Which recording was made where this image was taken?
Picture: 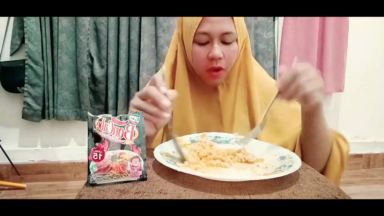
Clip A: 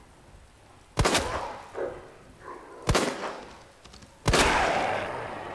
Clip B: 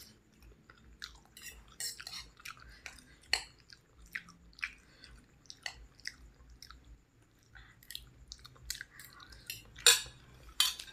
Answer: B